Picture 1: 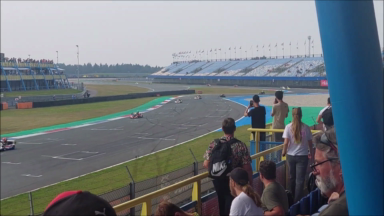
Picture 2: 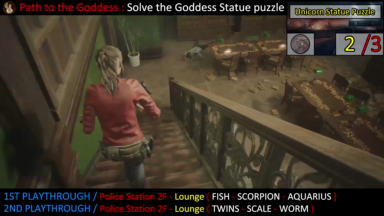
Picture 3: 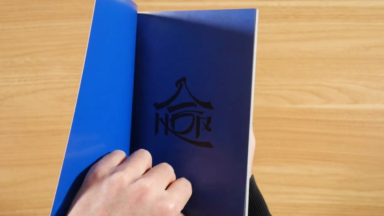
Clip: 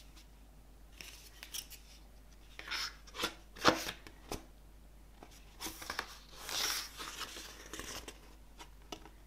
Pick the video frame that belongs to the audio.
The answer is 3